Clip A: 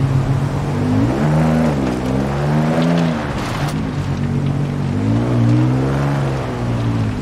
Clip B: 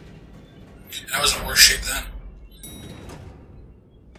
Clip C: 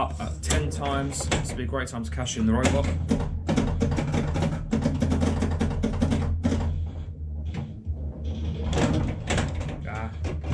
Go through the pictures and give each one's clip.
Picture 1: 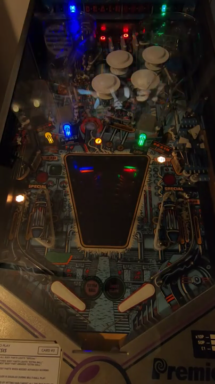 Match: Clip C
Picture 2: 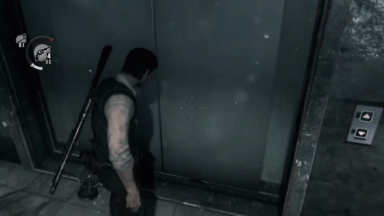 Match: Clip B